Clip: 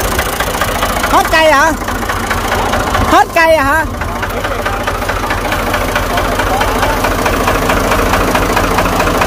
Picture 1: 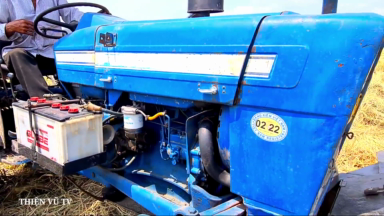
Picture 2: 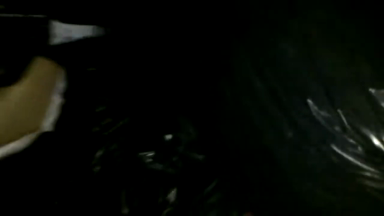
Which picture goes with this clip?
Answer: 1